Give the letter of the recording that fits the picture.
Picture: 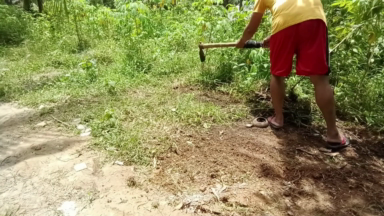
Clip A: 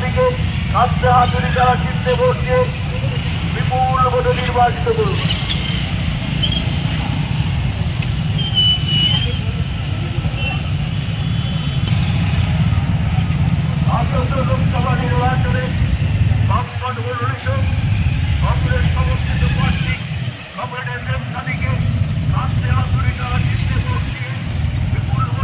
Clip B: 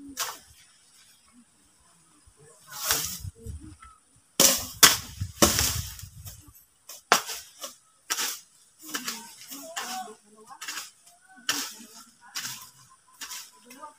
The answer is B